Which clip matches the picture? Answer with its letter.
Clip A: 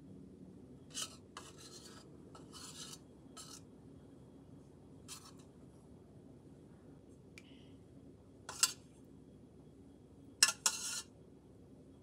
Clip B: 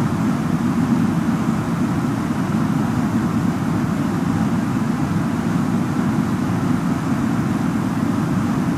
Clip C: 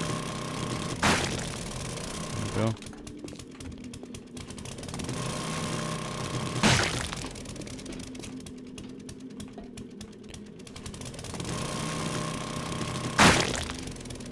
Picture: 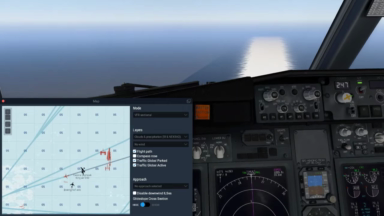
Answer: B